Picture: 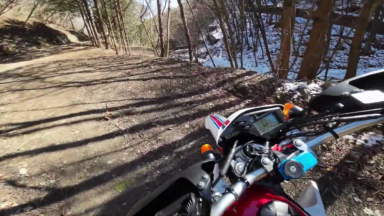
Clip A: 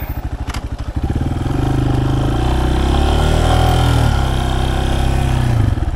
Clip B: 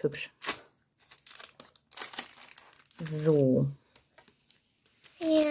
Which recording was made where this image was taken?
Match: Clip A